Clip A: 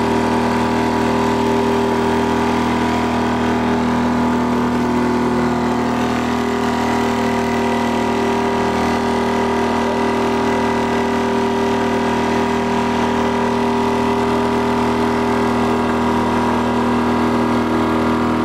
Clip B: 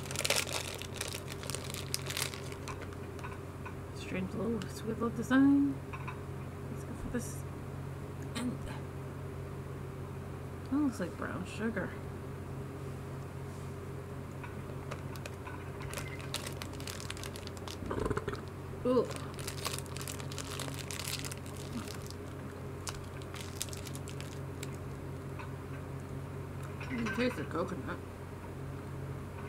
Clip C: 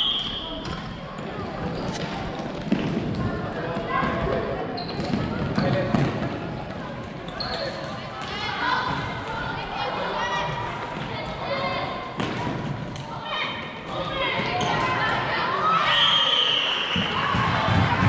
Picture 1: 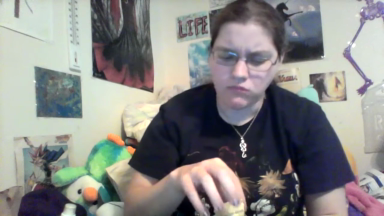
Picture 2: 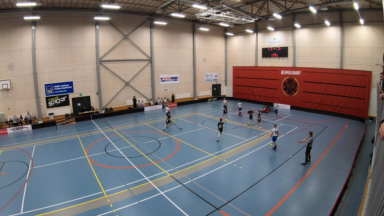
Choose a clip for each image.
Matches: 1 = B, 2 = C